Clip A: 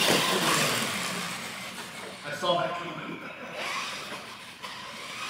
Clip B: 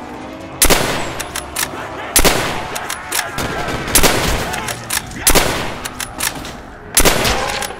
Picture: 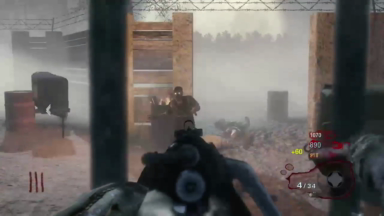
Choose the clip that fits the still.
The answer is B